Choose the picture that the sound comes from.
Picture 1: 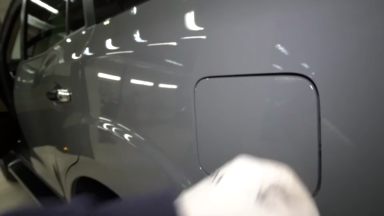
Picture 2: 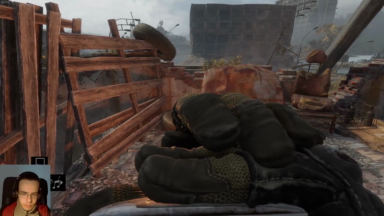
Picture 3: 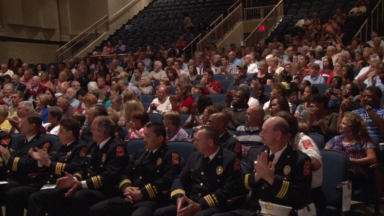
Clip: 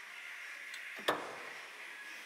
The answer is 1